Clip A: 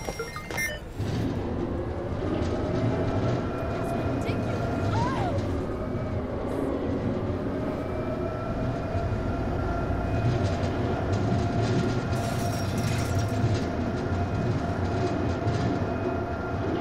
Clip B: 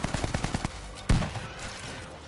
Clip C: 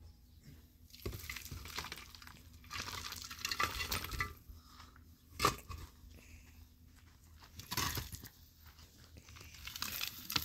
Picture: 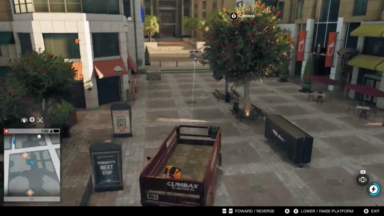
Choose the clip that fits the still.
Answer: A